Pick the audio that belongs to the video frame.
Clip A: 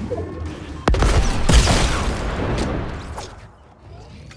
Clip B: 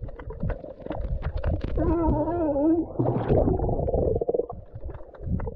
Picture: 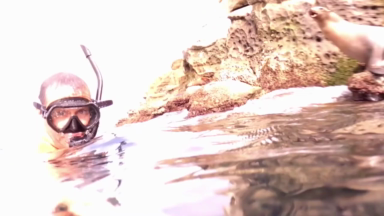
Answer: B